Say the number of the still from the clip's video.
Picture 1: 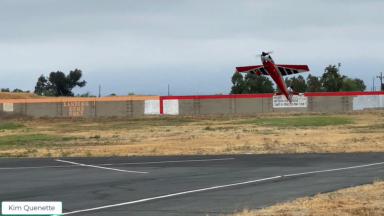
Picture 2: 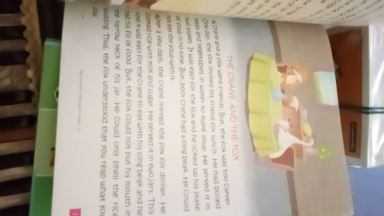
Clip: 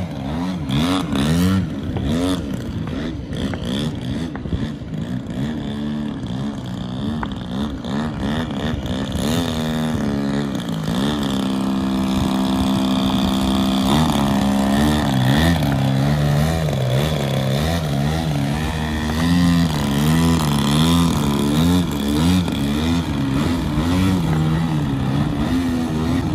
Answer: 1